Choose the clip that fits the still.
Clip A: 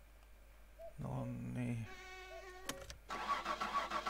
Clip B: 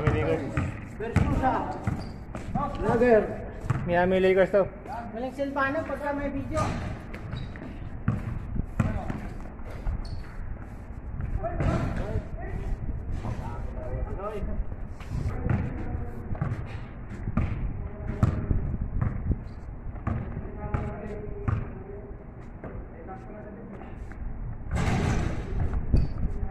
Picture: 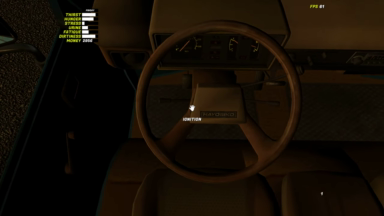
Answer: A